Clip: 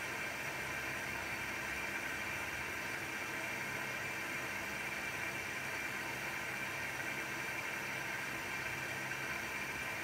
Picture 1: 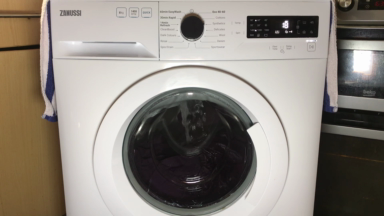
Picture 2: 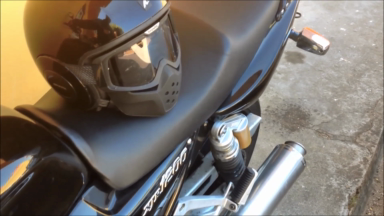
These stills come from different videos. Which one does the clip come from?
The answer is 1